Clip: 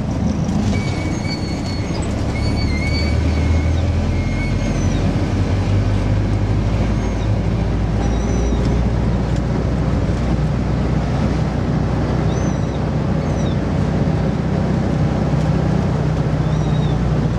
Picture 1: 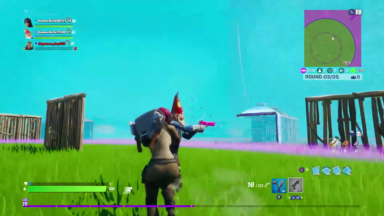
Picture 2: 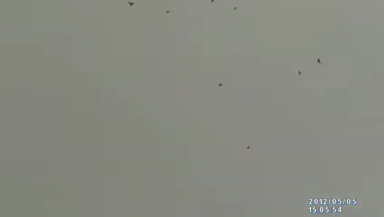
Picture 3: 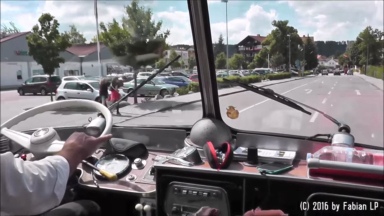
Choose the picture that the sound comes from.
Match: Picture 3